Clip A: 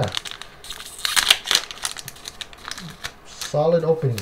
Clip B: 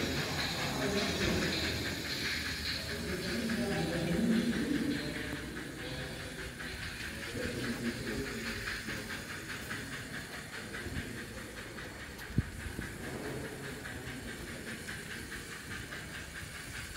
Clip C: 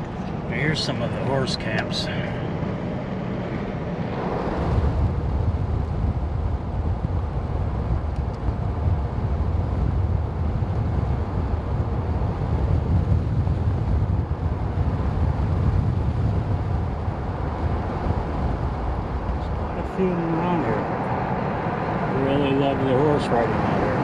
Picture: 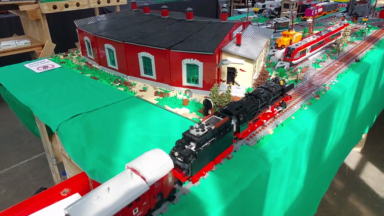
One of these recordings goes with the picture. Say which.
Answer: B